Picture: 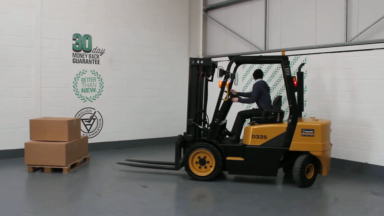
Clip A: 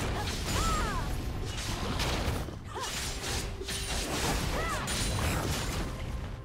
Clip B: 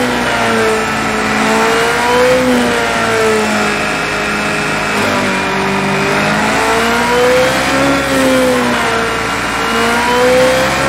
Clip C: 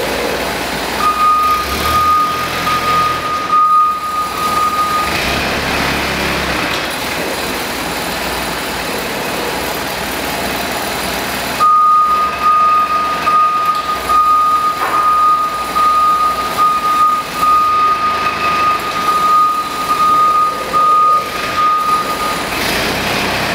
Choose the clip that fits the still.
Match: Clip C